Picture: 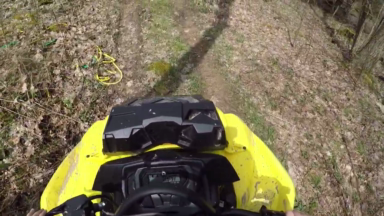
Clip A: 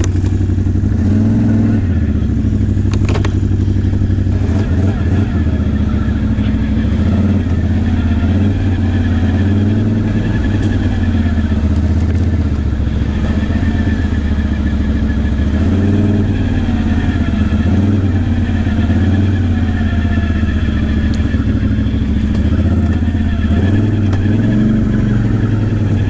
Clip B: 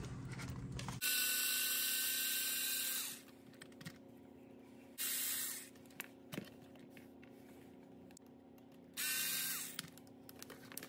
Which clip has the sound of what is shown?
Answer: A